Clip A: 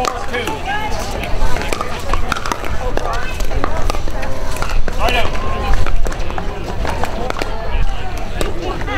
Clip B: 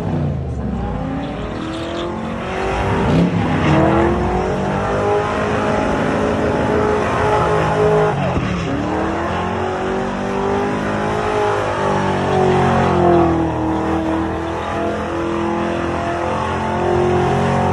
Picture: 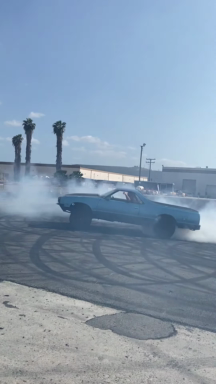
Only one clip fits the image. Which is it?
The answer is B